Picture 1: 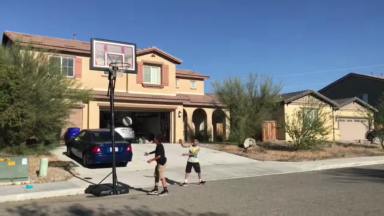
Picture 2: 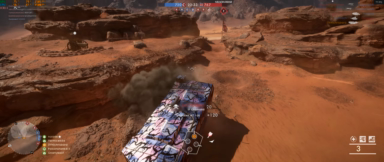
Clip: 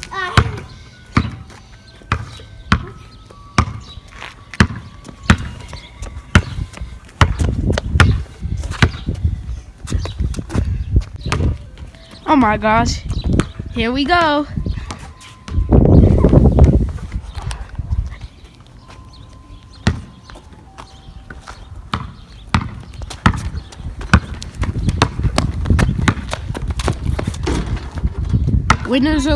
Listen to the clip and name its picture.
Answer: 1